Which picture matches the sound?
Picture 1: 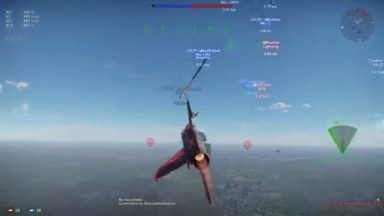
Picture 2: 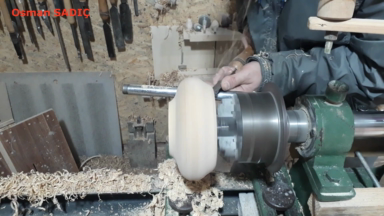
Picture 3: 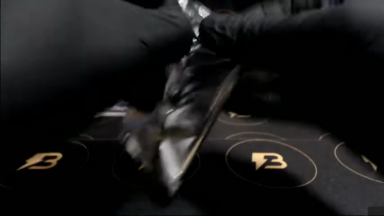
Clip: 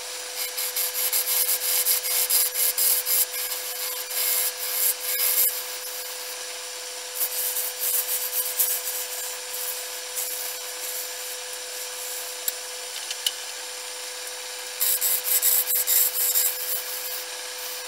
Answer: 2